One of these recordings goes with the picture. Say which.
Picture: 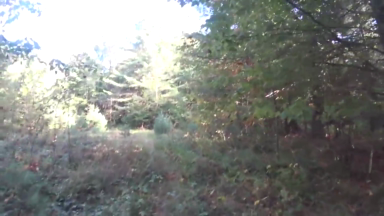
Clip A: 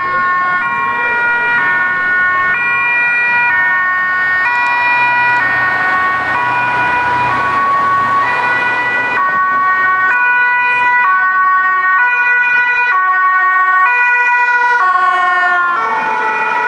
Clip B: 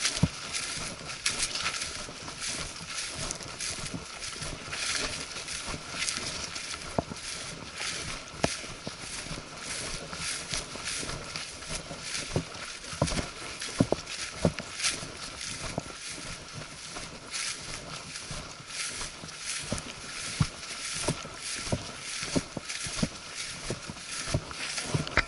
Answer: B